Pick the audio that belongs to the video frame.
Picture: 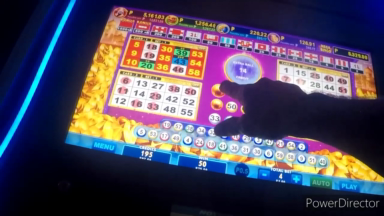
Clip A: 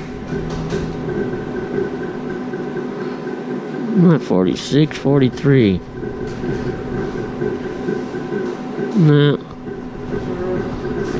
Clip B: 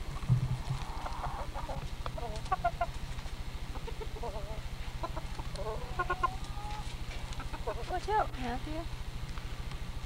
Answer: A